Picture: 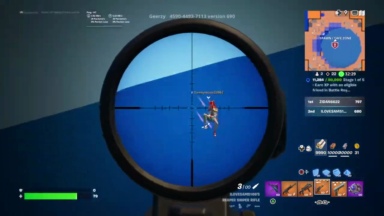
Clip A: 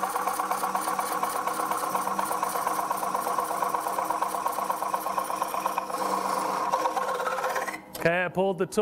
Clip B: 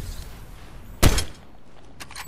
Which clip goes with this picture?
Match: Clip B